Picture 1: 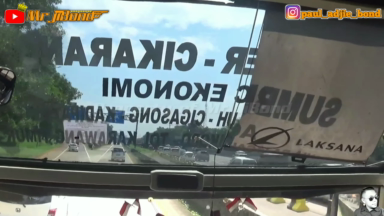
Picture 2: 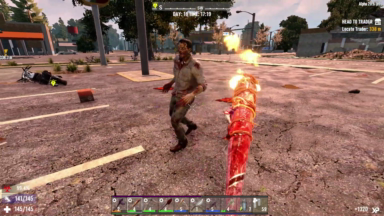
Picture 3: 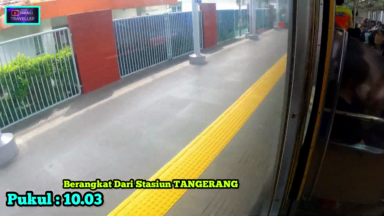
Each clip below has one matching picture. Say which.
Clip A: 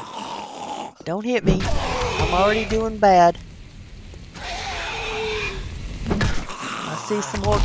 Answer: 2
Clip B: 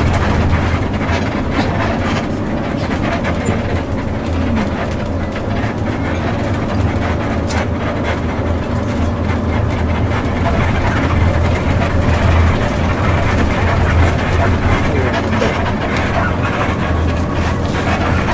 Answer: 1